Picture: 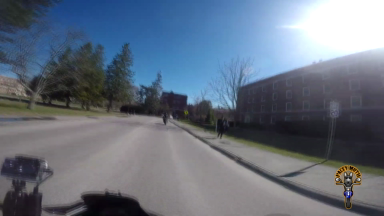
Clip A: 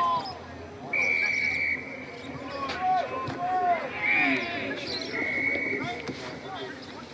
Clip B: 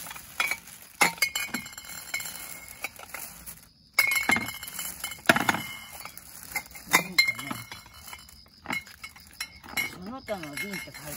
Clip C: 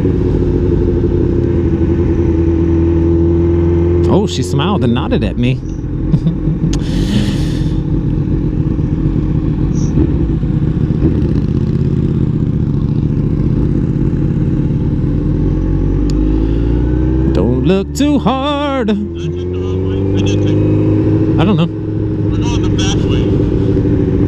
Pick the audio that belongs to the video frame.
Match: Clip C